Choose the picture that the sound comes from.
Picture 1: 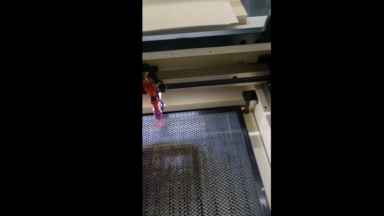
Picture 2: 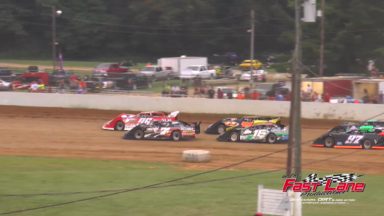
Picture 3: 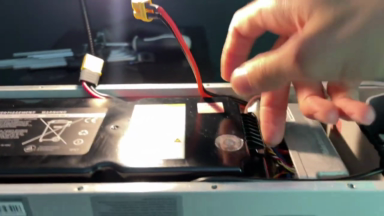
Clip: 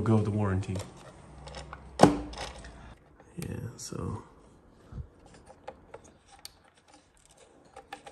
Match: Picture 3